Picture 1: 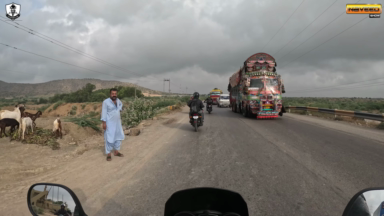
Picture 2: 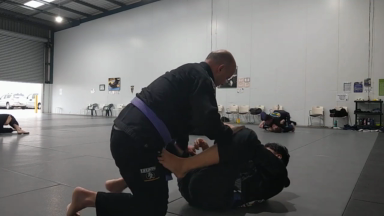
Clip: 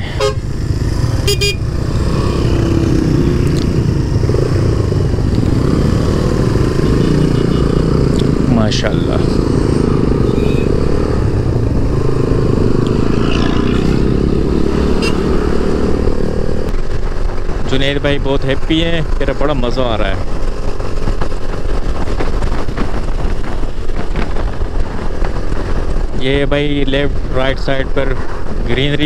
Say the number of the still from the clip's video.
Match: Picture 1